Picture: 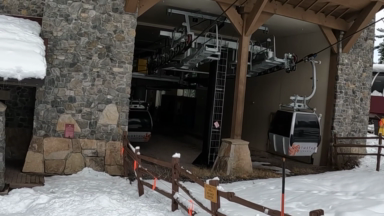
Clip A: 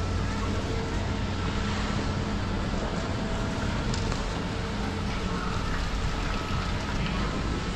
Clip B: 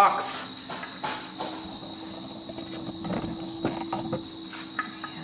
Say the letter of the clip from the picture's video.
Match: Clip A